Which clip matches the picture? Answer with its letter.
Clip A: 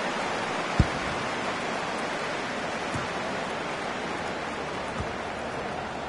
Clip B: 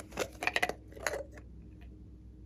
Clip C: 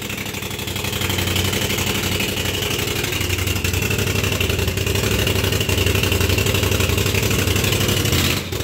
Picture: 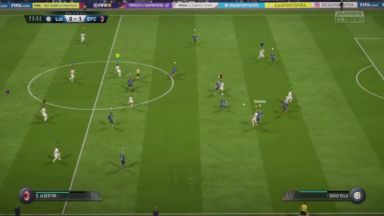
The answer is A